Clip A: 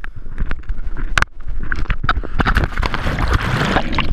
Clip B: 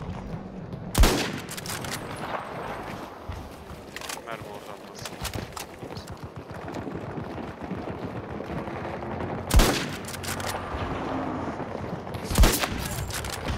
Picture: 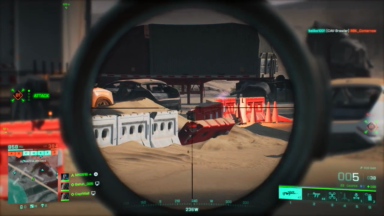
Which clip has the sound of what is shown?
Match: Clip B